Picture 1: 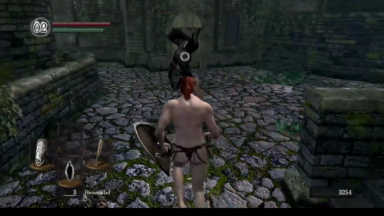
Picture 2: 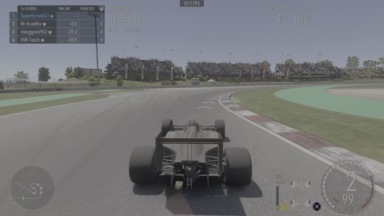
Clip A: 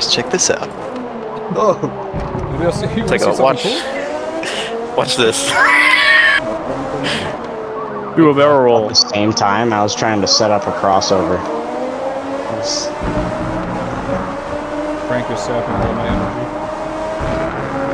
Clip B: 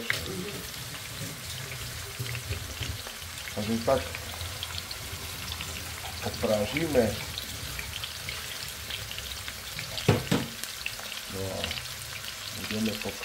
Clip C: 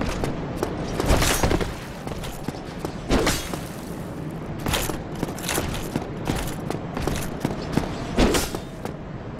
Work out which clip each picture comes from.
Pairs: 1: C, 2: A